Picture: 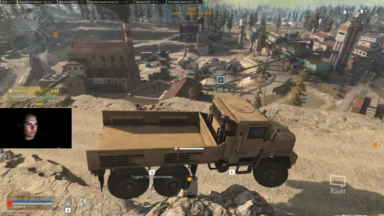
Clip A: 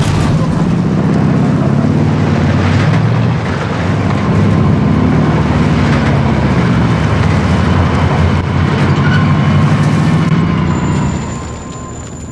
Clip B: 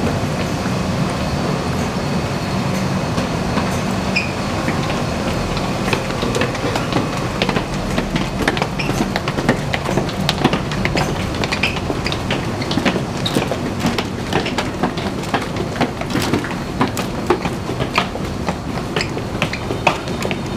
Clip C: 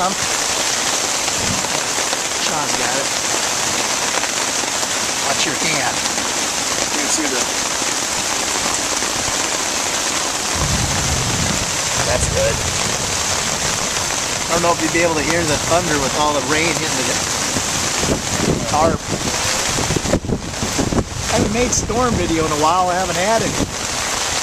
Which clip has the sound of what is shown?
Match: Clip A